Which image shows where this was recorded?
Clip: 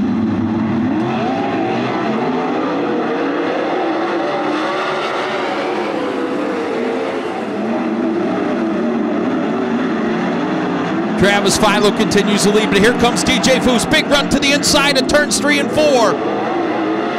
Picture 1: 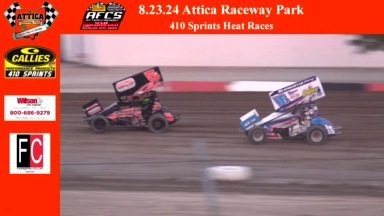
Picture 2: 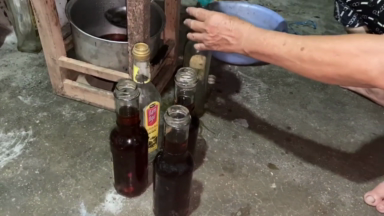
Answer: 1